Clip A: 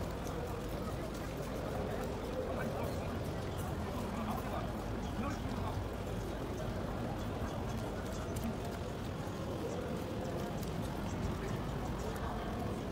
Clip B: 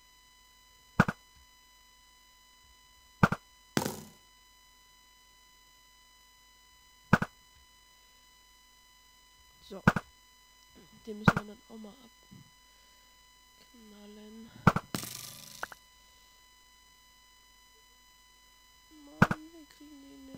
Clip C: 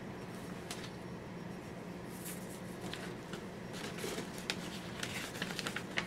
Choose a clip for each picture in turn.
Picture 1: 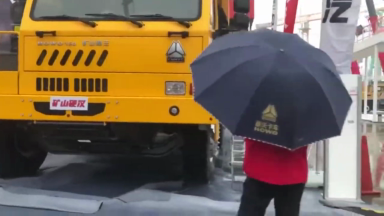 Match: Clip A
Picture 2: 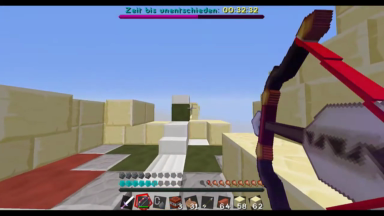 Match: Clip B